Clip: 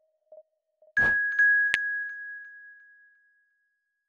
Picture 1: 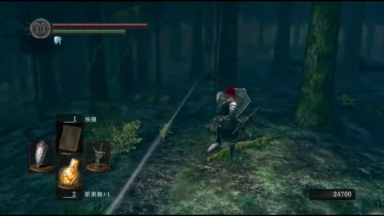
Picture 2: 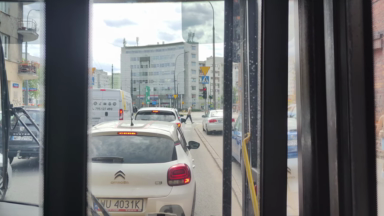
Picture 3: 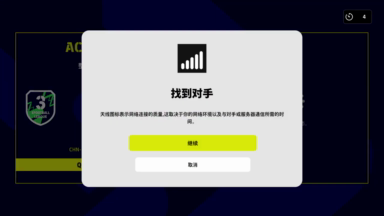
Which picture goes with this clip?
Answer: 3